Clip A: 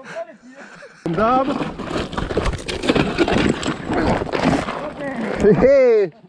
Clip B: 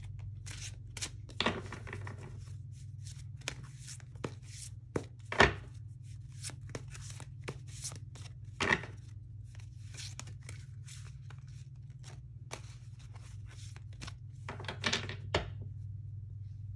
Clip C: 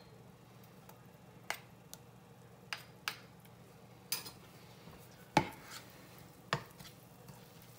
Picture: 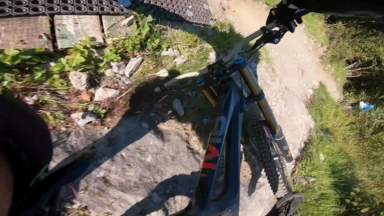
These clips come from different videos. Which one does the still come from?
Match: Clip A